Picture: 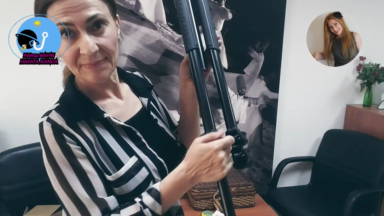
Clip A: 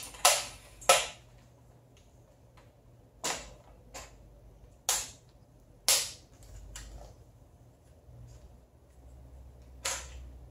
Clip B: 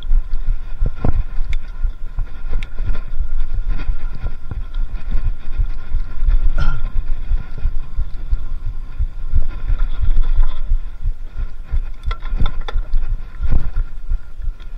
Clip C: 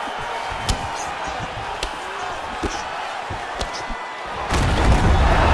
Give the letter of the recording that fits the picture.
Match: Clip A